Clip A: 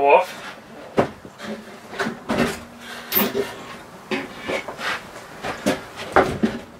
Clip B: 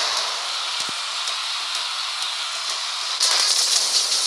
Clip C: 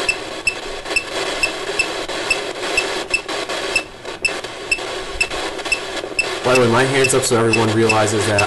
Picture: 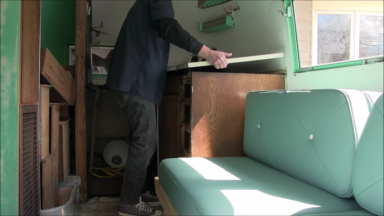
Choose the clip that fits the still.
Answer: A